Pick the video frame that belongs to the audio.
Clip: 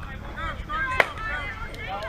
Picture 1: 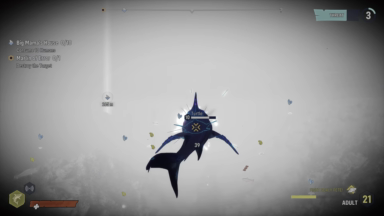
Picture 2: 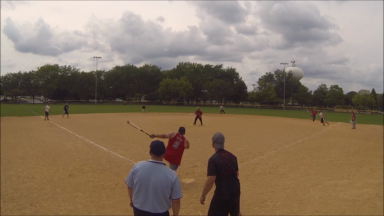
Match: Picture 2